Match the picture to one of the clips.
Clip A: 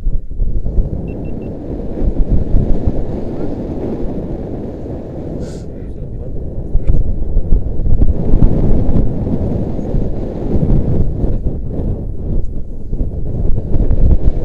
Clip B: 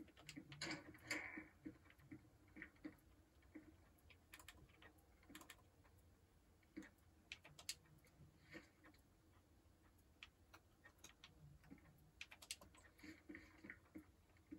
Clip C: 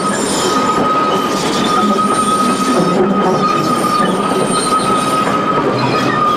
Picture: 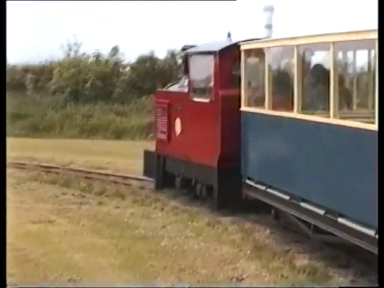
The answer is C